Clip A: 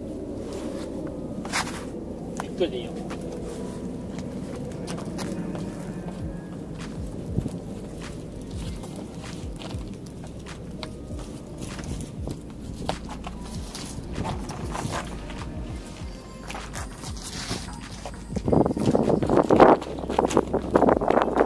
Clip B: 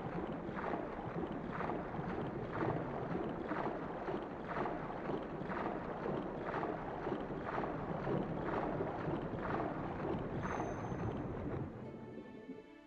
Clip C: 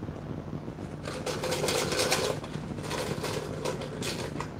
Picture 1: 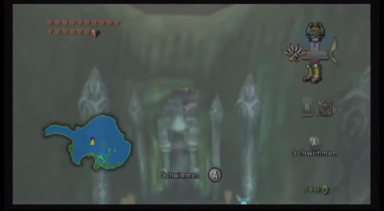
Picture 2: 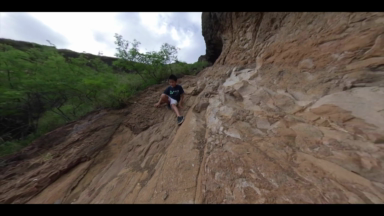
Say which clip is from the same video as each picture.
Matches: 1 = B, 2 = A